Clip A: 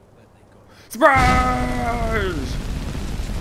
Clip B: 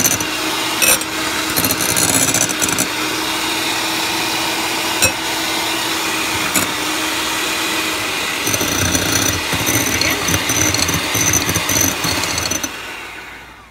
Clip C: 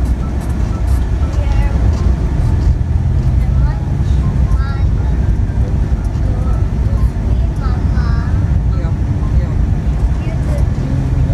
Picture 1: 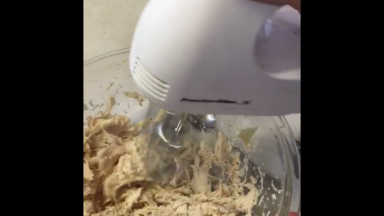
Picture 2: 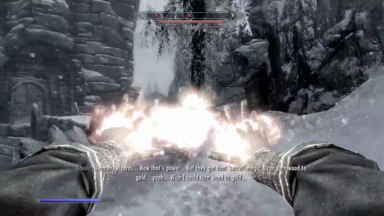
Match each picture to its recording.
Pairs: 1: B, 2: A